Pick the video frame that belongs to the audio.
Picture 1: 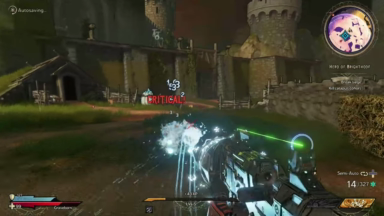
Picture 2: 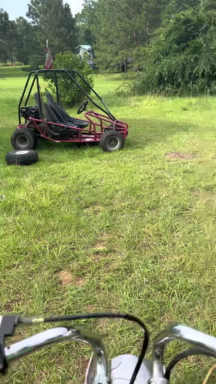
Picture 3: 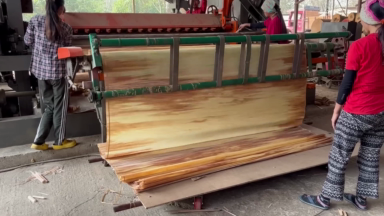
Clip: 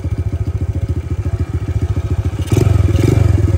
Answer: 2